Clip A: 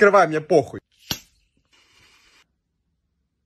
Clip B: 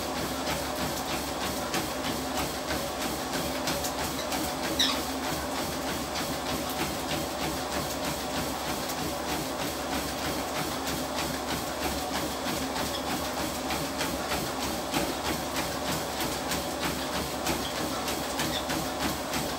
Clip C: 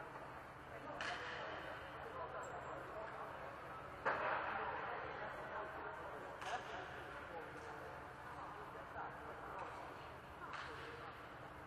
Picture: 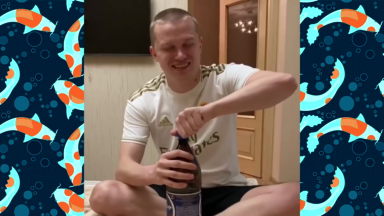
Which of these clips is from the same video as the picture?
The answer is A